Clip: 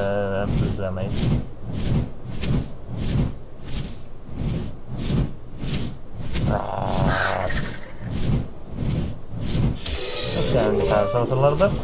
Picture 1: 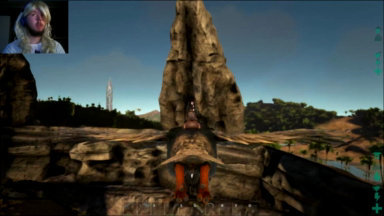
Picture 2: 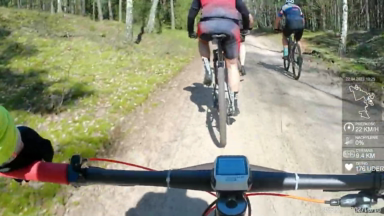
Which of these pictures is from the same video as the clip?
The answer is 1